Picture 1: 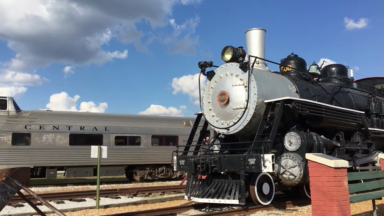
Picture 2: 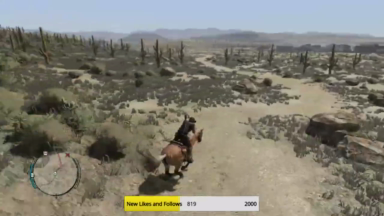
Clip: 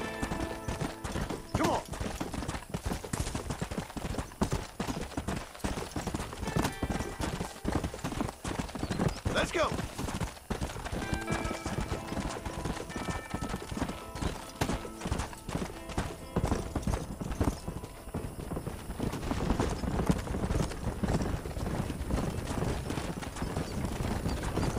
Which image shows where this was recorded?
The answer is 2